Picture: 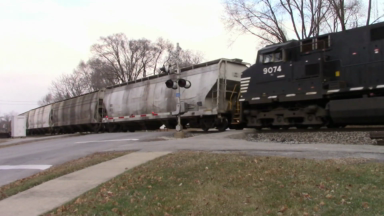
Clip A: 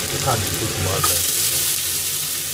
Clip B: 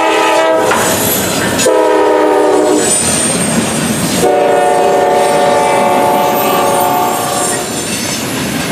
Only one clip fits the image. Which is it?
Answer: B